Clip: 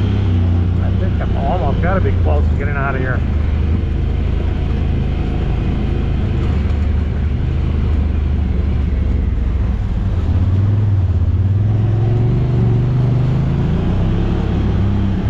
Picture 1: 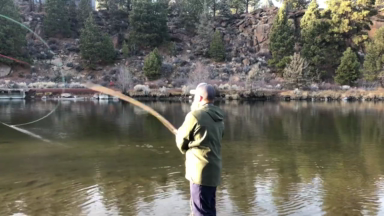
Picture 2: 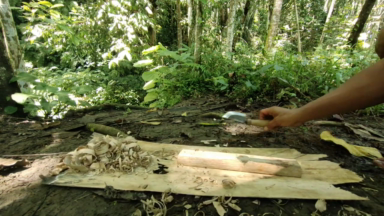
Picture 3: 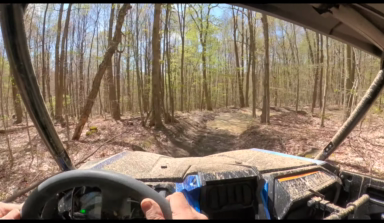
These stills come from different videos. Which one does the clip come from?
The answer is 3